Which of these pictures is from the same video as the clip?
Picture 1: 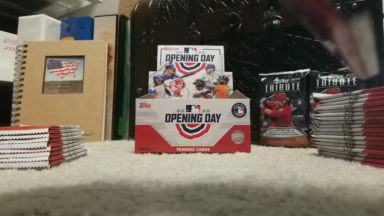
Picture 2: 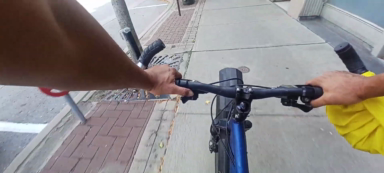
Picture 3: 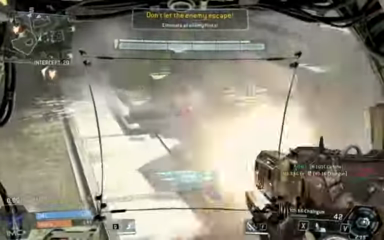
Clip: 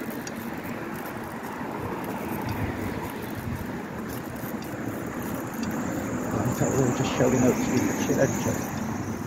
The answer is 2